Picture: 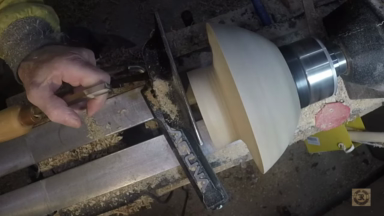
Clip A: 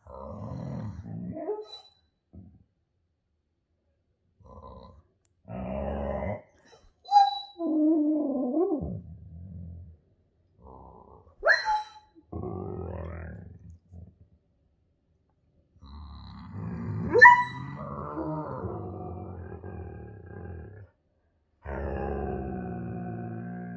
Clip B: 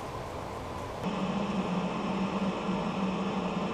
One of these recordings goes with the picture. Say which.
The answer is B